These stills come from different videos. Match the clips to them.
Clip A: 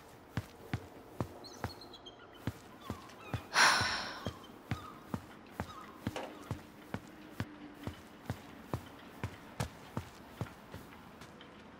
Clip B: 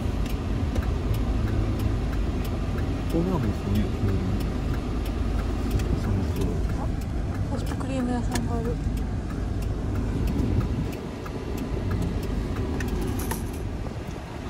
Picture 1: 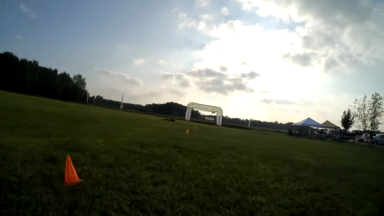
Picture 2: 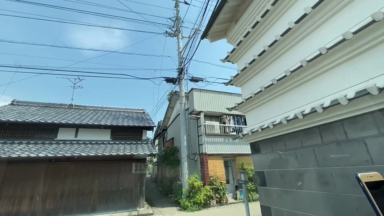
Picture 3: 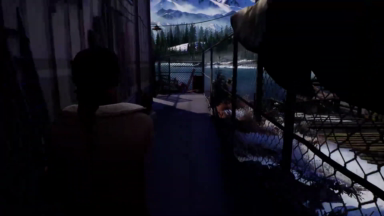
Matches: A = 3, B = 2